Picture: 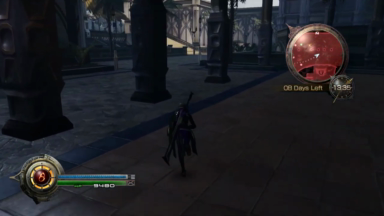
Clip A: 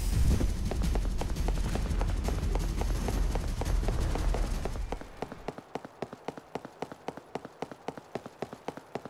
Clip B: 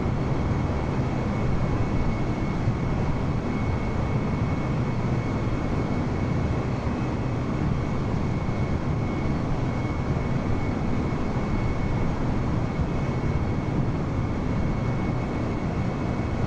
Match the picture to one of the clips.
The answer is A